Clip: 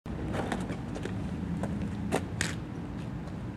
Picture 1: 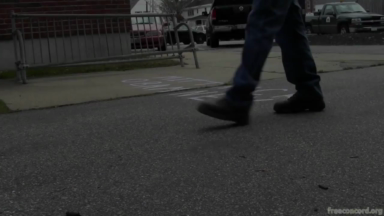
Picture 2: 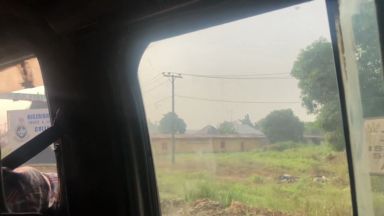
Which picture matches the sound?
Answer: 1